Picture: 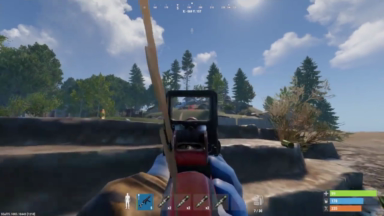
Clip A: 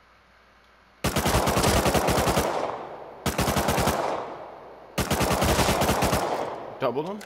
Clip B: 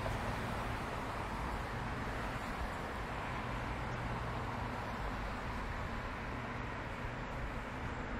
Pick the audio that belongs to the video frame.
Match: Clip A